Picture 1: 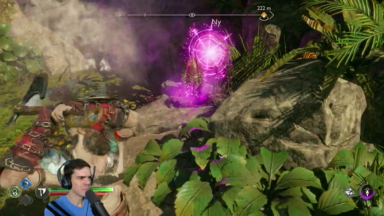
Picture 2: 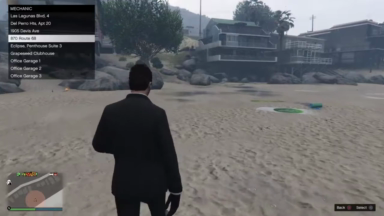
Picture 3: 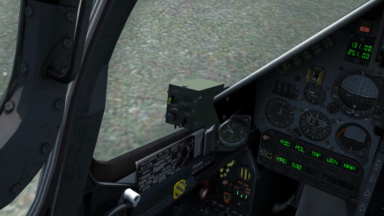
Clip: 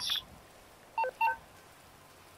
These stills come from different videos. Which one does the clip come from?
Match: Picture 2